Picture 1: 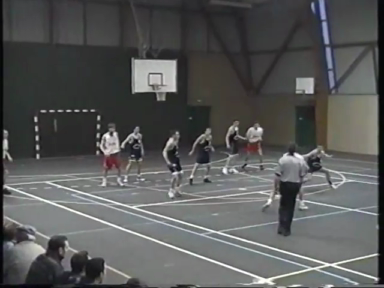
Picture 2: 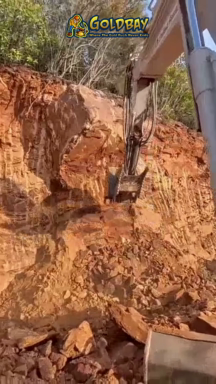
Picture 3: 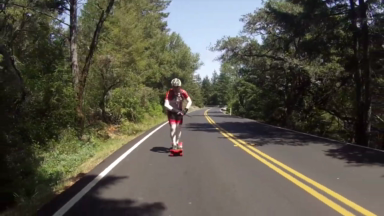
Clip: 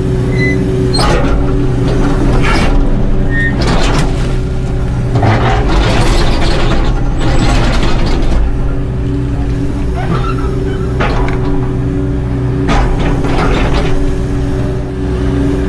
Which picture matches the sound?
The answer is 2